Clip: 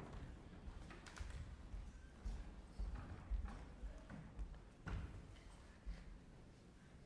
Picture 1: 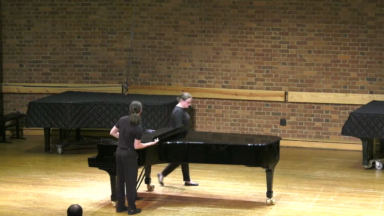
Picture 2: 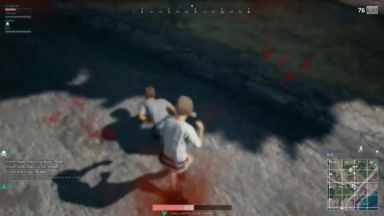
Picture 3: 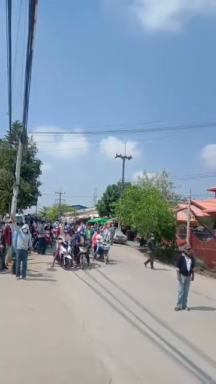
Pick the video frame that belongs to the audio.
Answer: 1